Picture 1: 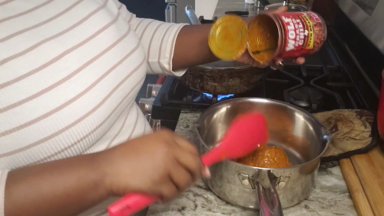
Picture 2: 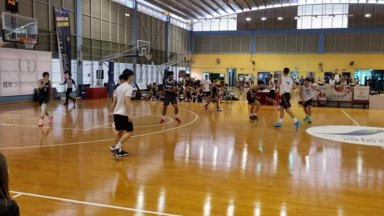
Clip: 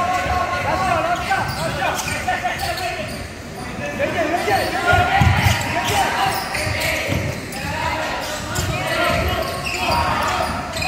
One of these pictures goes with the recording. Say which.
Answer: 2